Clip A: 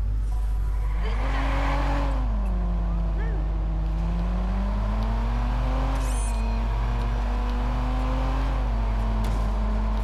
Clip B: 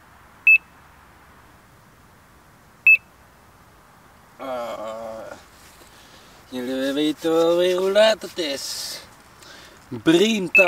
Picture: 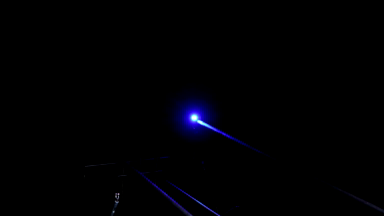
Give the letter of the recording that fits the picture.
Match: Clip B